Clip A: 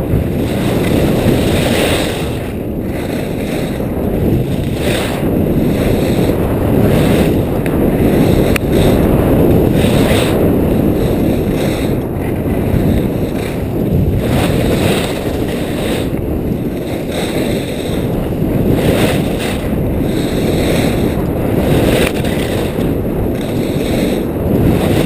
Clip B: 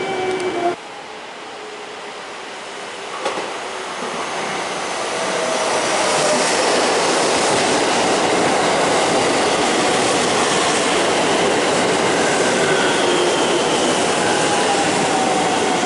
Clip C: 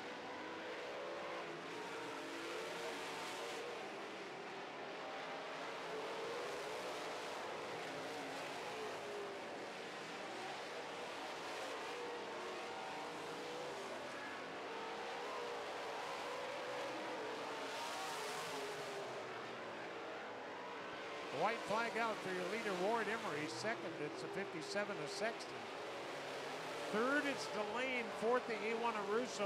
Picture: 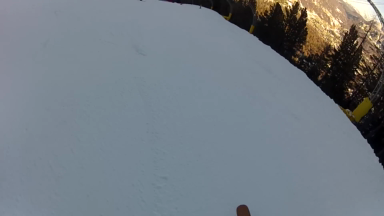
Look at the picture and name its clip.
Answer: A